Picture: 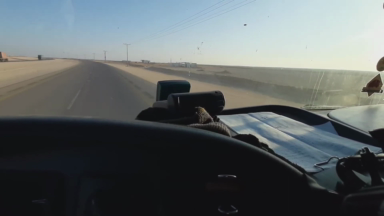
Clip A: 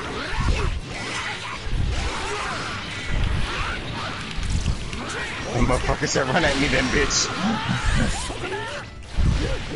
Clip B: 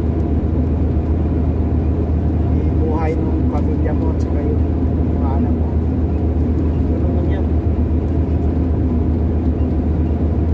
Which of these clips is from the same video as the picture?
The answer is B